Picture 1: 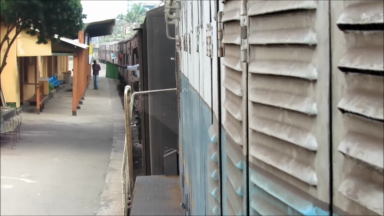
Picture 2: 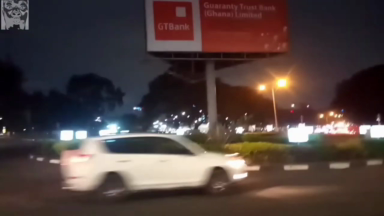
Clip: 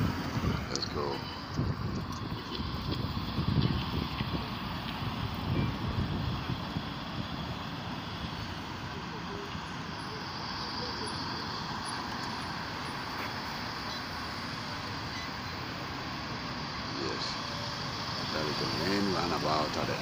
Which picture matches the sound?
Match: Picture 2